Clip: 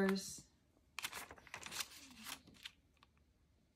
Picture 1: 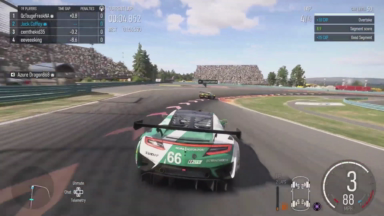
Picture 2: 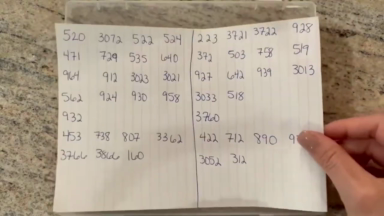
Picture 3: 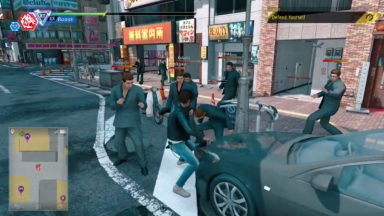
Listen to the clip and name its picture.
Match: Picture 2